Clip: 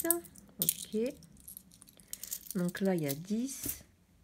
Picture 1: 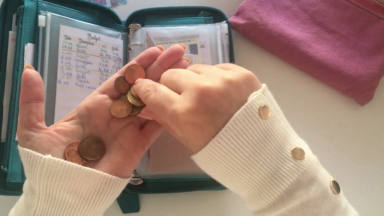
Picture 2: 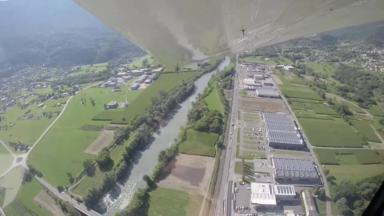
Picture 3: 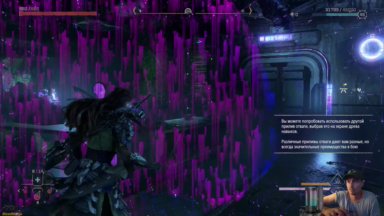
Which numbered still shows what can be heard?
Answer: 1